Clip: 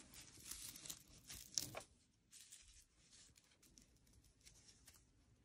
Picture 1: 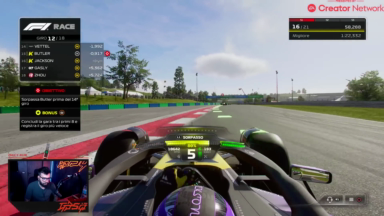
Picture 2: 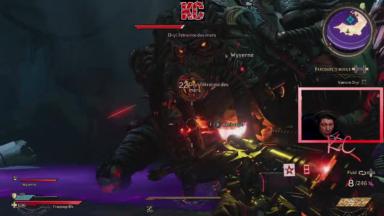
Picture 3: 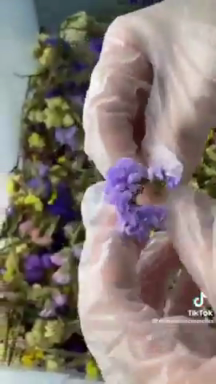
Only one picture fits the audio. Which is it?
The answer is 3